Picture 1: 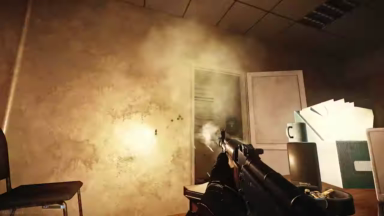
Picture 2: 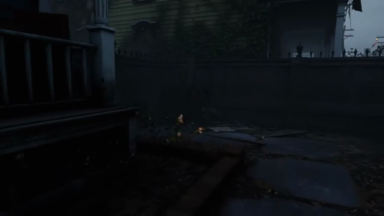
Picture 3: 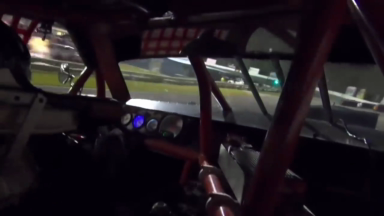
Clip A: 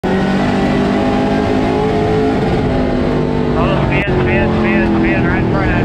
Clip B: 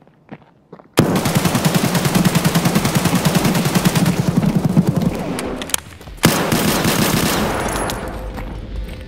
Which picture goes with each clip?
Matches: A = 3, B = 1